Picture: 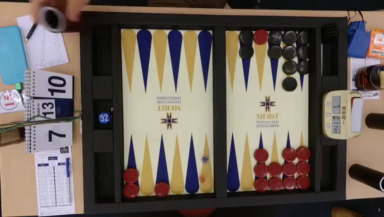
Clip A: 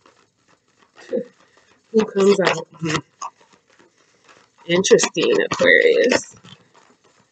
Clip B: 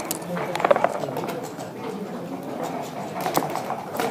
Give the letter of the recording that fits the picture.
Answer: B